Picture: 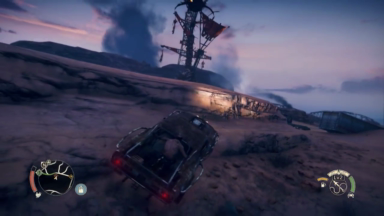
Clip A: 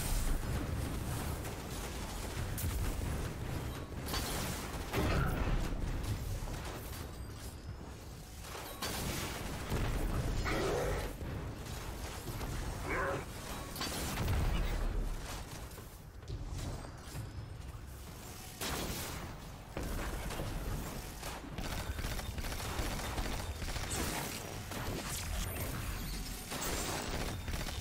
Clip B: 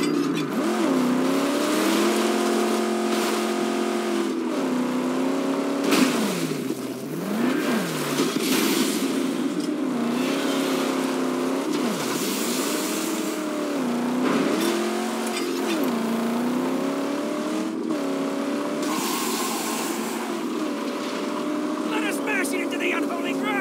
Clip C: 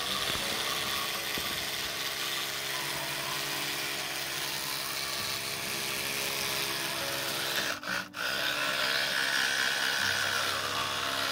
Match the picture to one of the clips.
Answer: B